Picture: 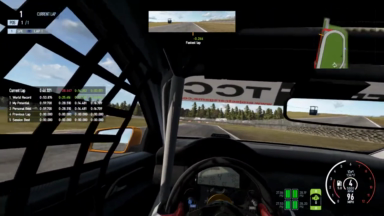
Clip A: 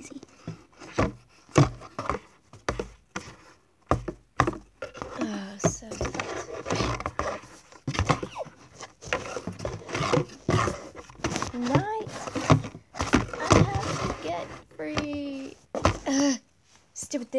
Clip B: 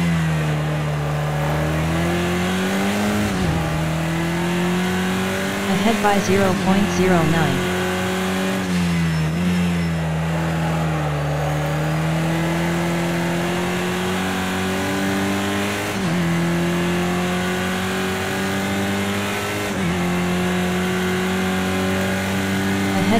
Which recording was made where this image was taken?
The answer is B